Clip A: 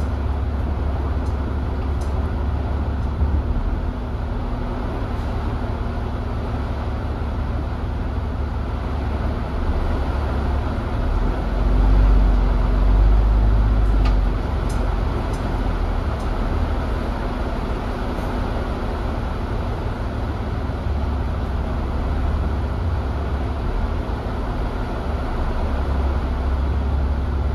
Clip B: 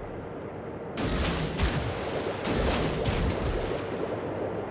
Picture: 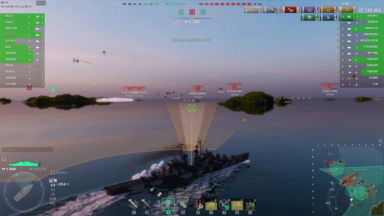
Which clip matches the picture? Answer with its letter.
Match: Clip B